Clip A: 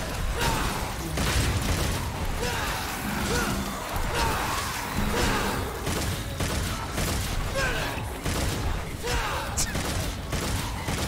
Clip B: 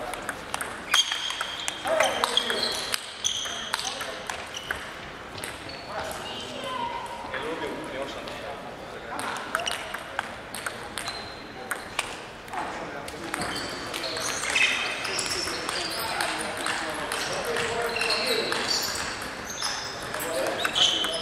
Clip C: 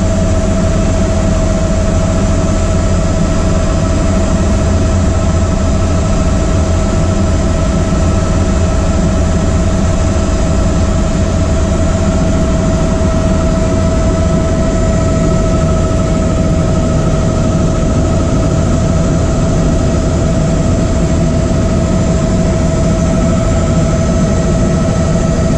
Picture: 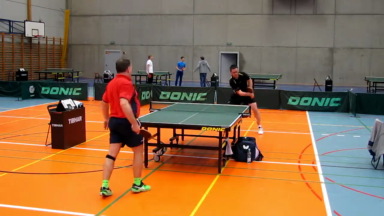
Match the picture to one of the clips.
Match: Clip B